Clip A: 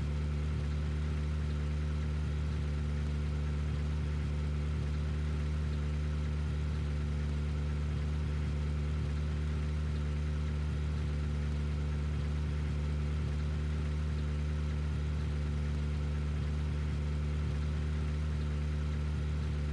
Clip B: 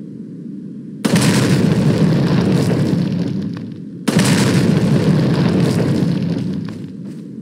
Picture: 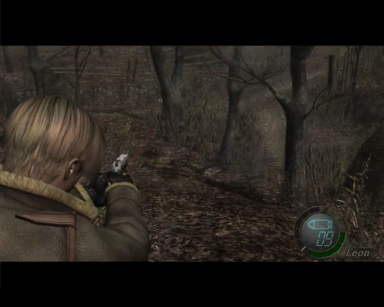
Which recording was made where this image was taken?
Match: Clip B